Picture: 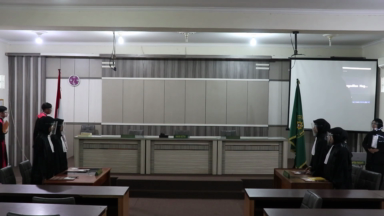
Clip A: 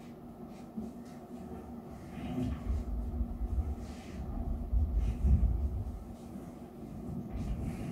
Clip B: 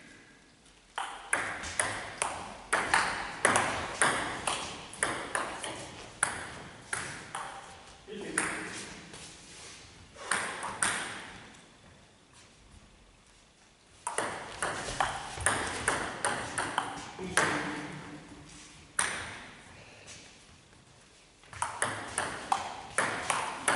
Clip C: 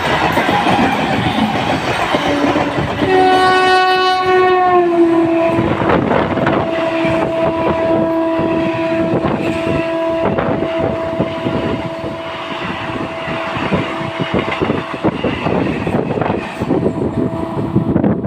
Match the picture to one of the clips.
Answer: A